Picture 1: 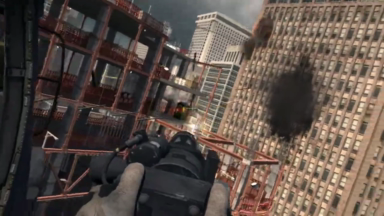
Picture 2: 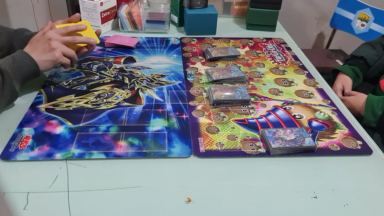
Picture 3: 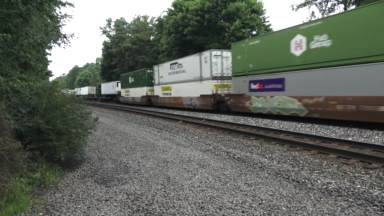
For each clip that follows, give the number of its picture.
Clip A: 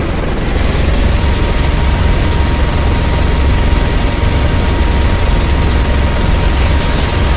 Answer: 1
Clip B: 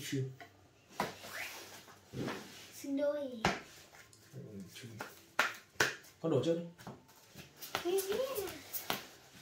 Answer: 2